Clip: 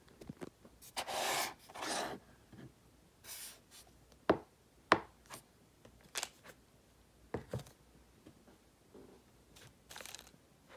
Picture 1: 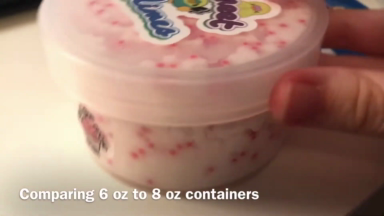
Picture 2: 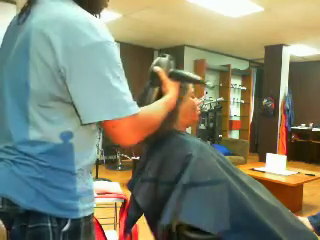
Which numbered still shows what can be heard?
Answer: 1